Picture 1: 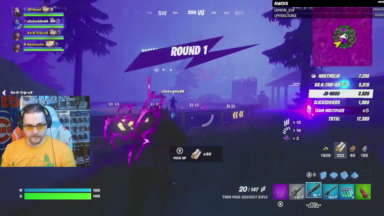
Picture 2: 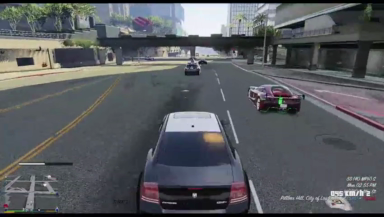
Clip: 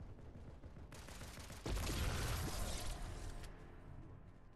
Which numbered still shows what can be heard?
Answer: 1